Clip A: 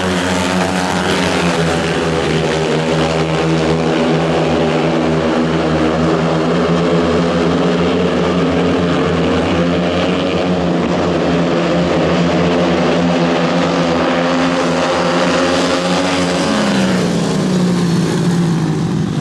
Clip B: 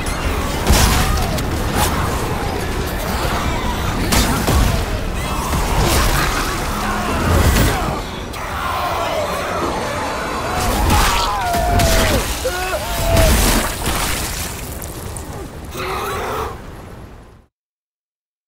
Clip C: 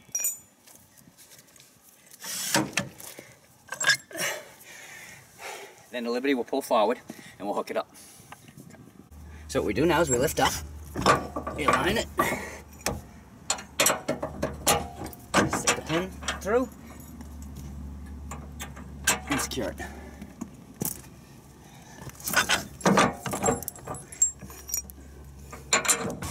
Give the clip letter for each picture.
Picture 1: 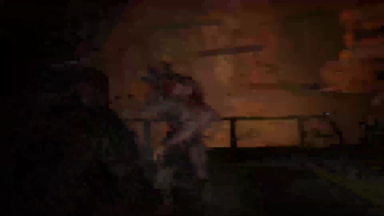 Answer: B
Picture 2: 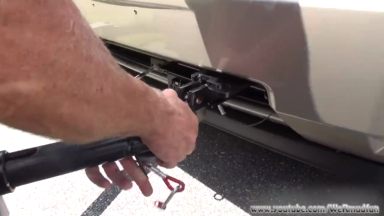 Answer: C